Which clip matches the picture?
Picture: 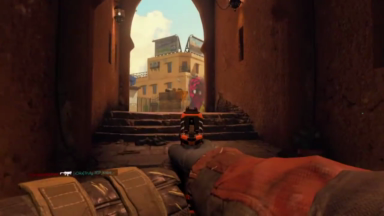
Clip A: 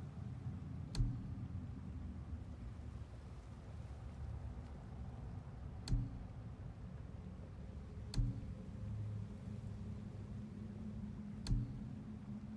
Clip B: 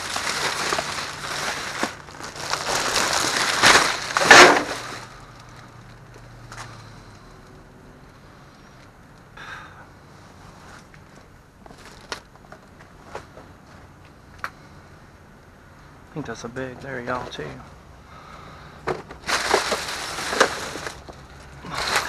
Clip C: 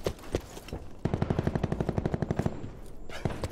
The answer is C